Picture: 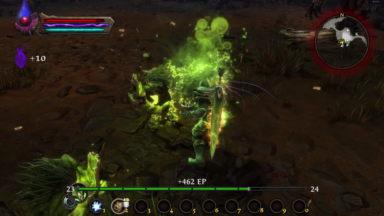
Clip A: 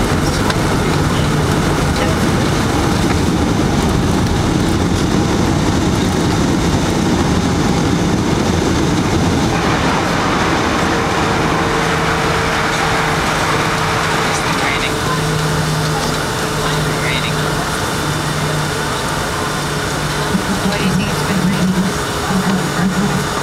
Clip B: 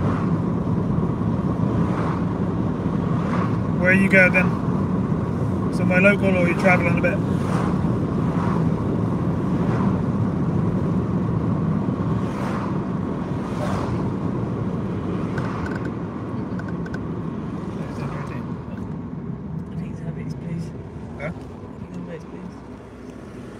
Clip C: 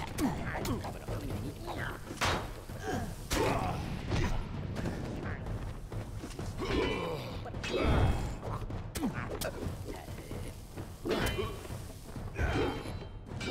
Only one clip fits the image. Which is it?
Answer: C